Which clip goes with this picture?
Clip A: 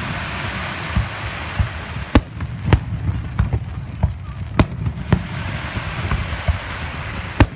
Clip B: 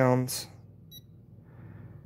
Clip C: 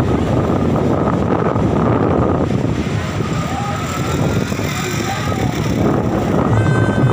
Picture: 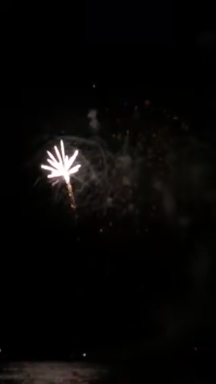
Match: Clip A